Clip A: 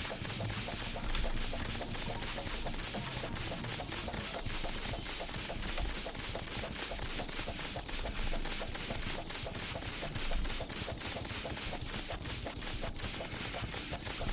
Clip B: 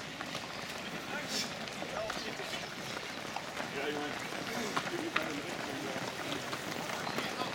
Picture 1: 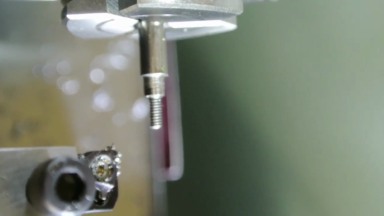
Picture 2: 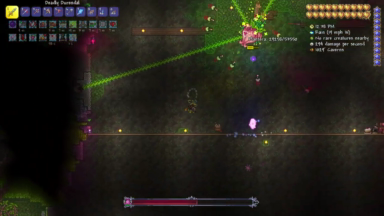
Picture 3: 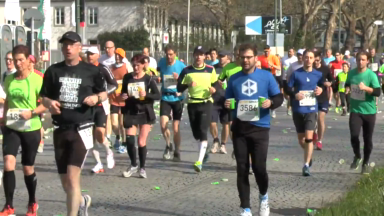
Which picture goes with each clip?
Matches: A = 2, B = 3